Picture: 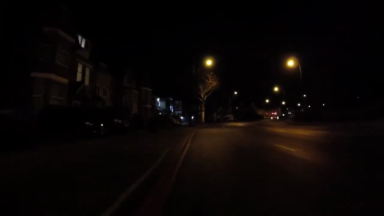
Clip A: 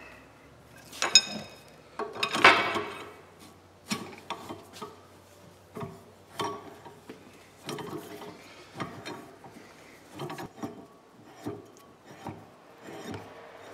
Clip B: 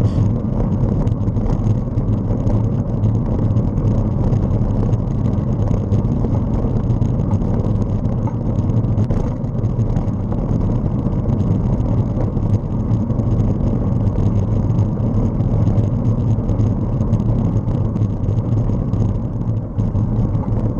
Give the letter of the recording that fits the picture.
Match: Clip B